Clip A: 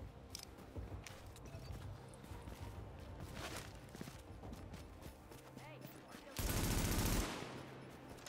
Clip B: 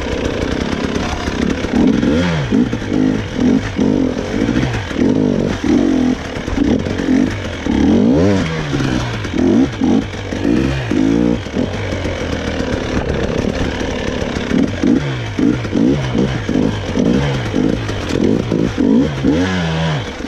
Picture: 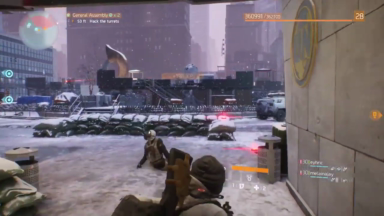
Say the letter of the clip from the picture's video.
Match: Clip A